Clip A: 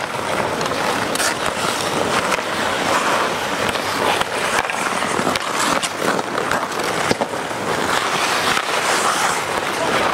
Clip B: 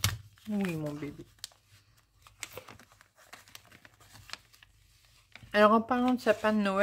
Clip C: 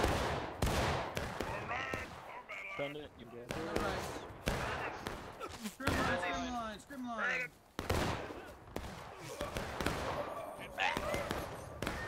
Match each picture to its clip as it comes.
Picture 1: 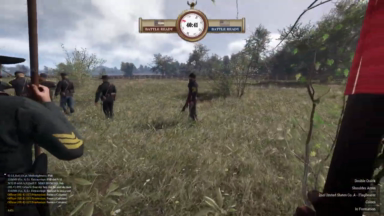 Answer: C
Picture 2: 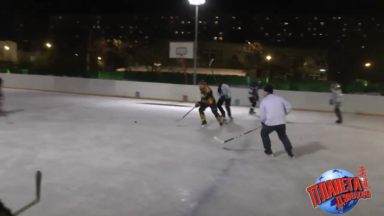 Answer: A